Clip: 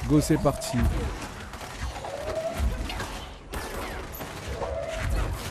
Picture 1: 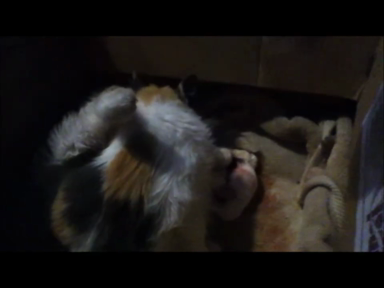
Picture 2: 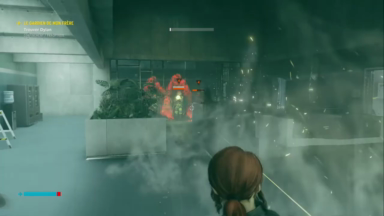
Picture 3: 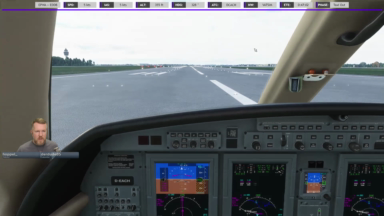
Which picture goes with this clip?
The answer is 2